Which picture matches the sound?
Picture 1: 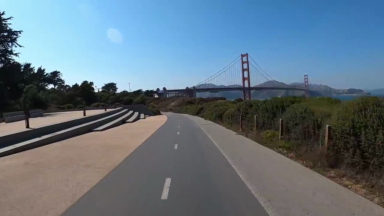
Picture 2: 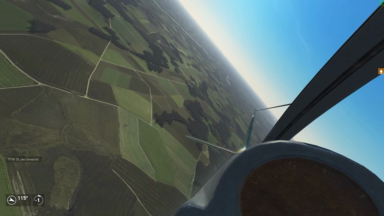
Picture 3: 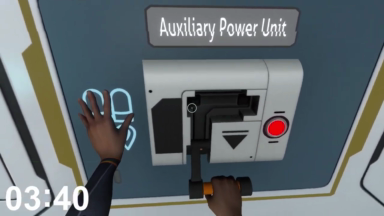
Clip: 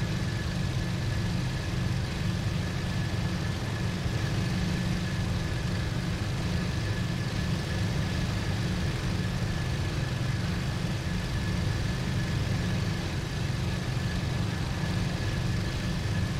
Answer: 2